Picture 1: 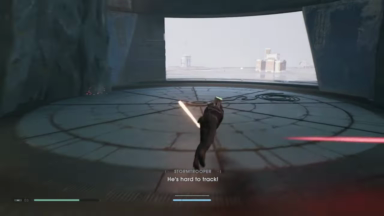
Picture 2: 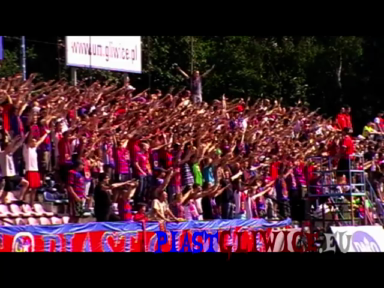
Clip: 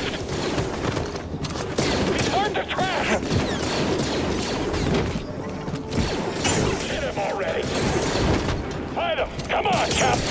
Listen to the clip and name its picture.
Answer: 1